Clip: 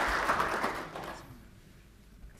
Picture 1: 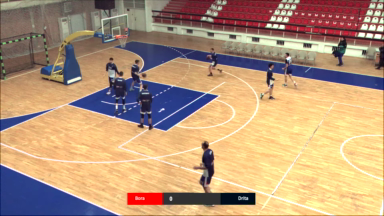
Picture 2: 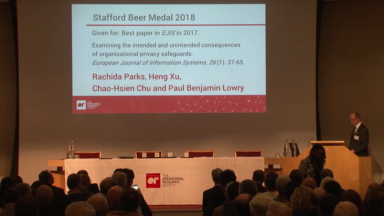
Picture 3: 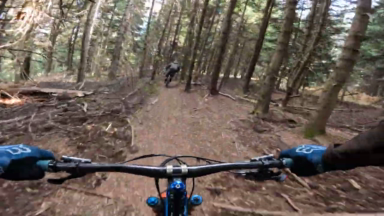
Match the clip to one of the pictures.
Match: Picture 2